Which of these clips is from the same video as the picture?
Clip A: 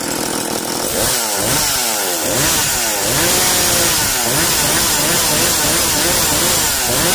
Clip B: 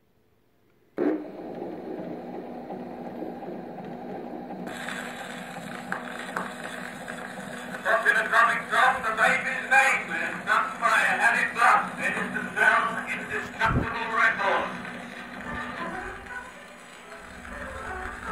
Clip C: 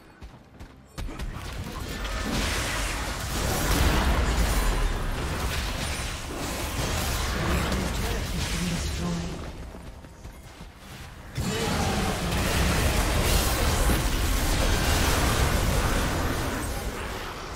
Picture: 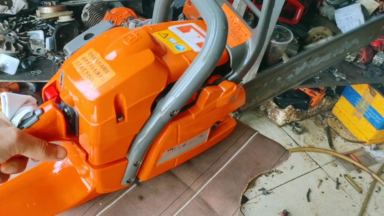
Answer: A